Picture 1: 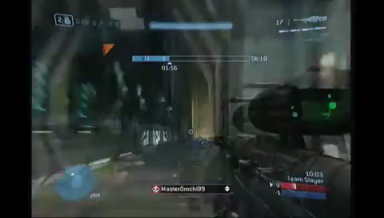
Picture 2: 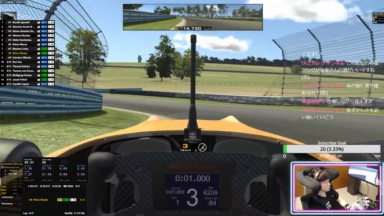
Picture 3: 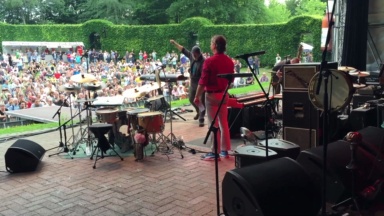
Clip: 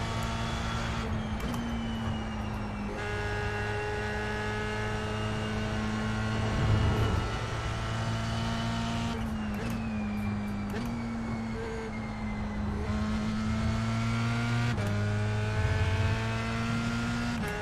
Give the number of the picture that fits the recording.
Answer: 2